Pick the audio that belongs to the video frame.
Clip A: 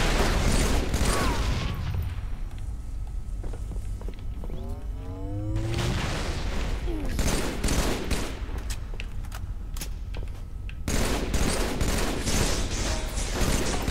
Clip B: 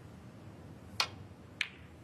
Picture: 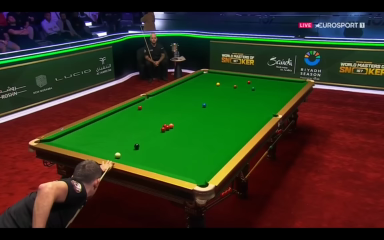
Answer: B